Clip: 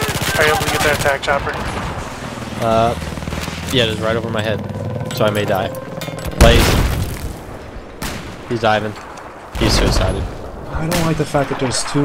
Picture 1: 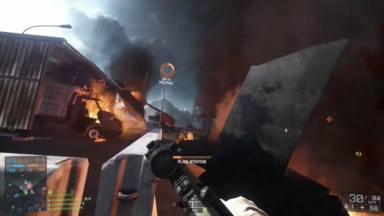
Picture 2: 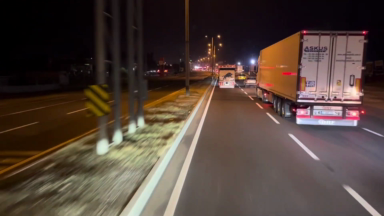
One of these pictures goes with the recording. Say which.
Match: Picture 1